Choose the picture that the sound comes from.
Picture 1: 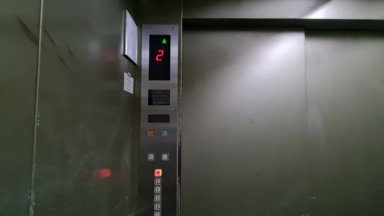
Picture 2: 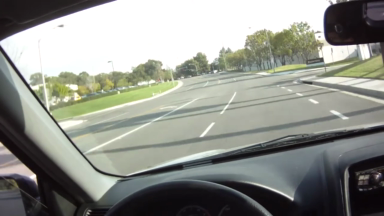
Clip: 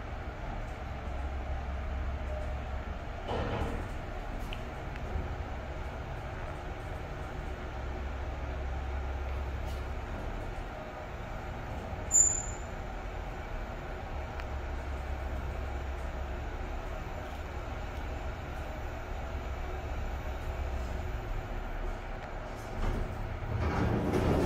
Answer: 1